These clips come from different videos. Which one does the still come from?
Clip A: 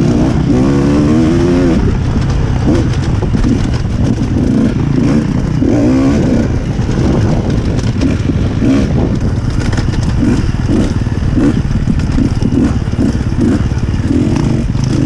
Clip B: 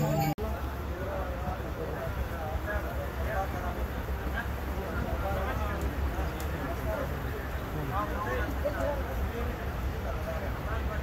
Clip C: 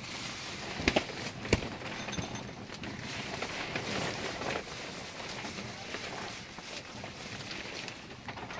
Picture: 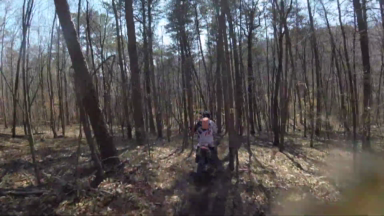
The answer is A